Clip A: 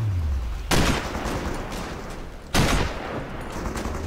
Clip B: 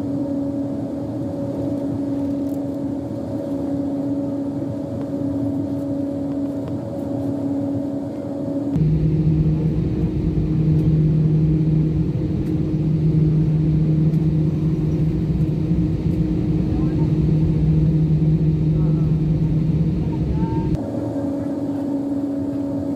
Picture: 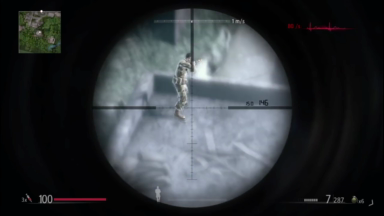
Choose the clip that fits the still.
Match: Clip A